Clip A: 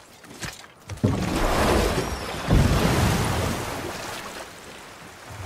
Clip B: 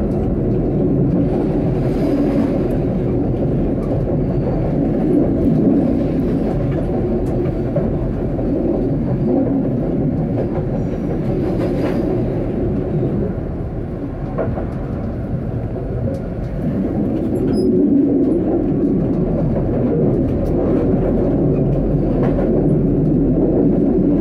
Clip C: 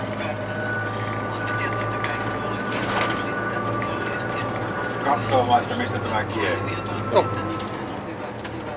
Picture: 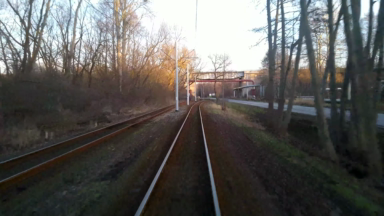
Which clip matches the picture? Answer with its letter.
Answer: B